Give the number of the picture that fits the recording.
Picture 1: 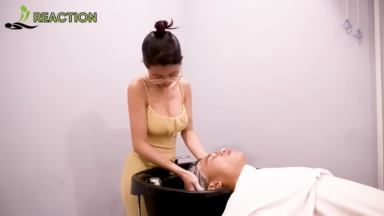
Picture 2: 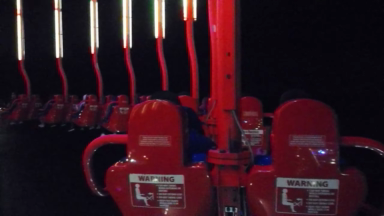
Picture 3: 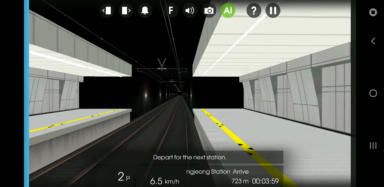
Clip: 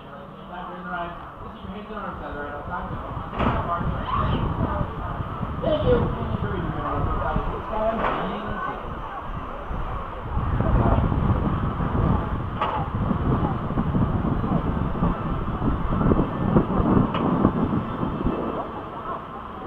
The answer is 2